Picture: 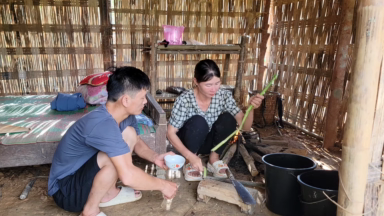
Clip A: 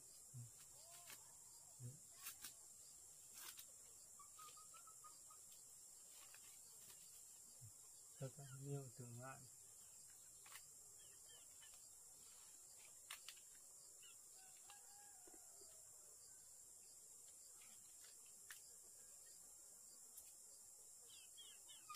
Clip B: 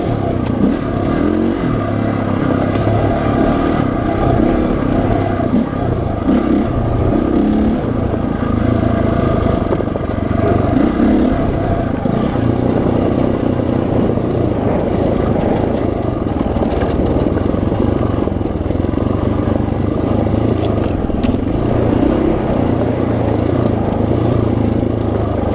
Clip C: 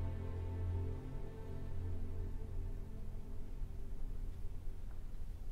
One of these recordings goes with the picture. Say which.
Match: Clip A